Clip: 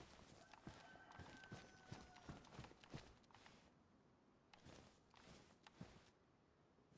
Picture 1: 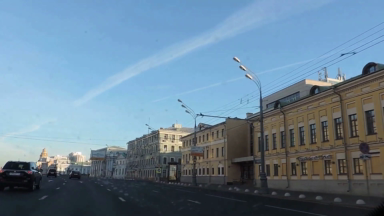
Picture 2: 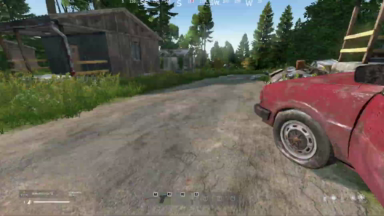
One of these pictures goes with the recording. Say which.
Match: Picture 2